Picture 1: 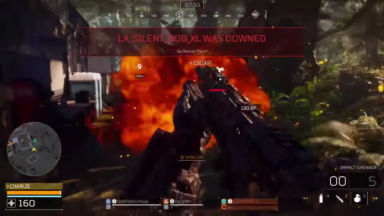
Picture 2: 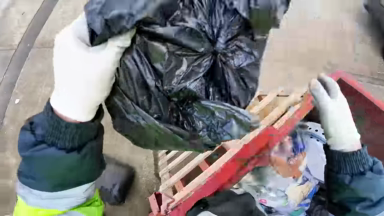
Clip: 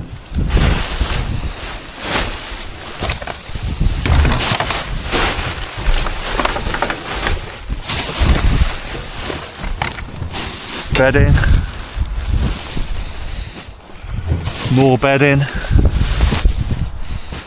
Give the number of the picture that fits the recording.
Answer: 2